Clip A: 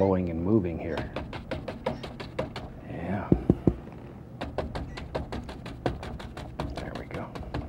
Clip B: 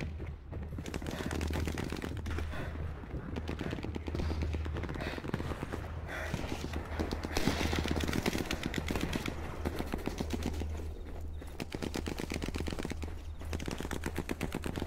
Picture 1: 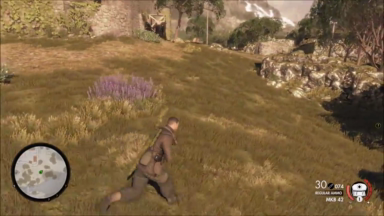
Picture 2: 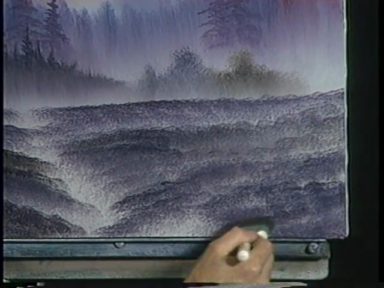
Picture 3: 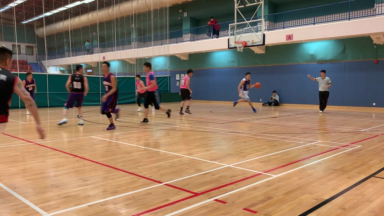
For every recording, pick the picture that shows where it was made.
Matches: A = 2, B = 1